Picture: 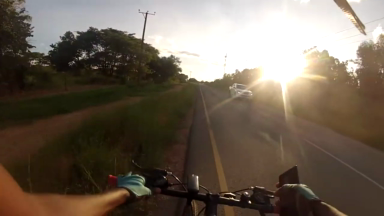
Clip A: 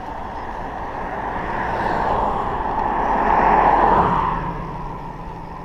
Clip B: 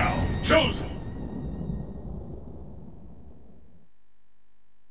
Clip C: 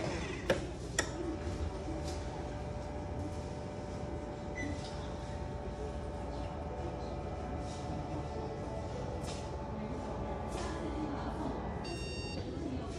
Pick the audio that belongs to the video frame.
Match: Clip A